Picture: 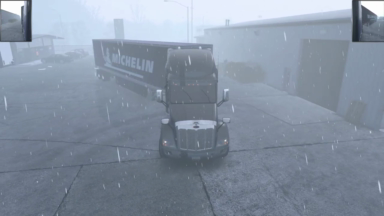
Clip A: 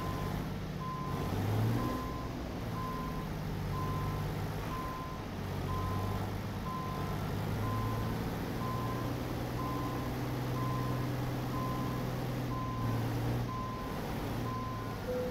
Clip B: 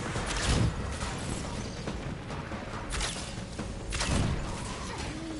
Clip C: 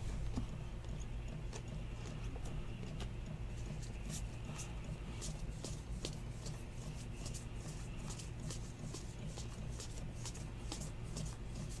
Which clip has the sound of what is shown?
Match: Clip A